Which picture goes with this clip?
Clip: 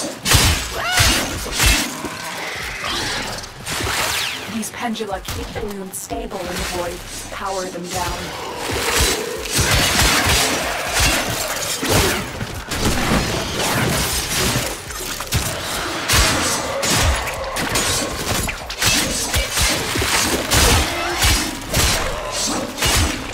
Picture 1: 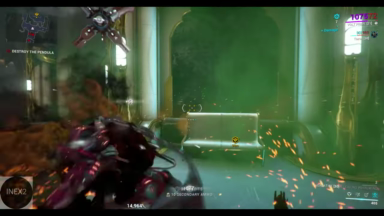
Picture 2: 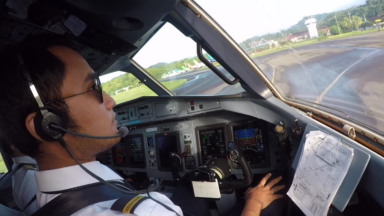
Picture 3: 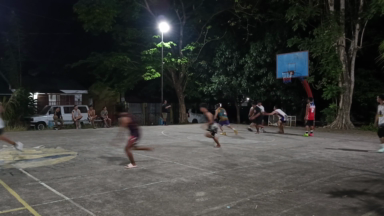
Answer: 1